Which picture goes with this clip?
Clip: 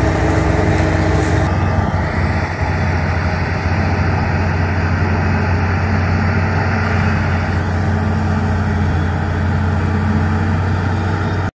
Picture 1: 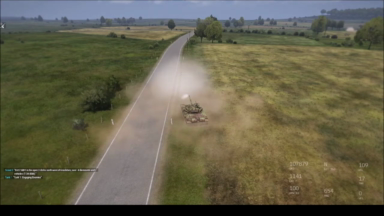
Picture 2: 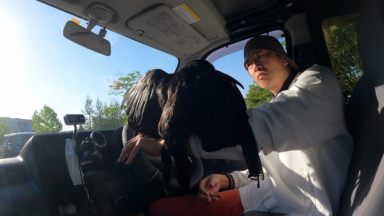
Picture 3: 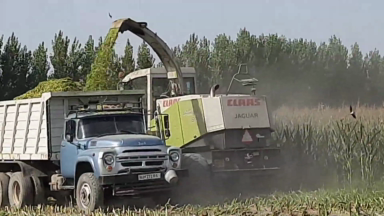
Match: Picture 3